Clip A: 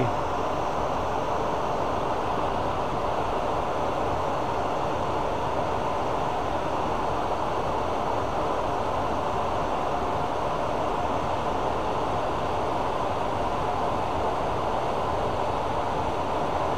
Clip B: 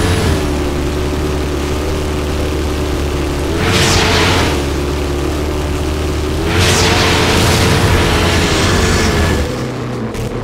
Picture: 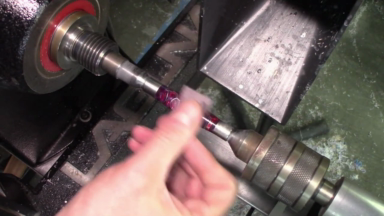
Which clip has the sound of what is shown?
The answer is A